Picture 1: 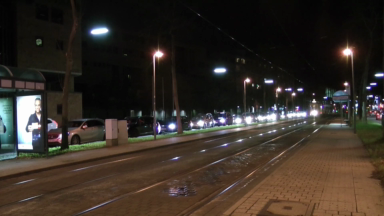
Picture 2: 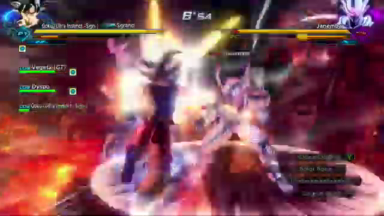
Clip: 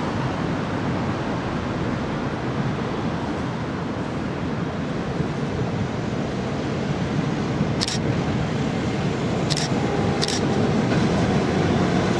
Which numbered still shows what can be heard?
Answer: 1